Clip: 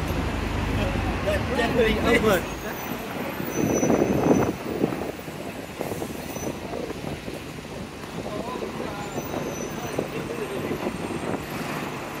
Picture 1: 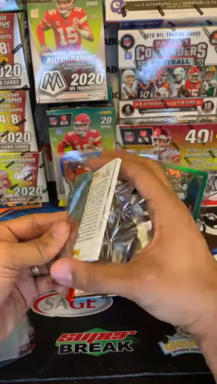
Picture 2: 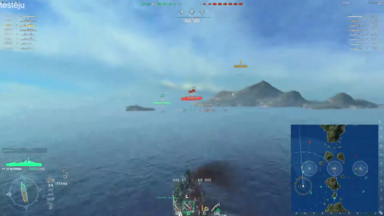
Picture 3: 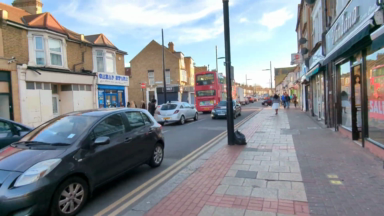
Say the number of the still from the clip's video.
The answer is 3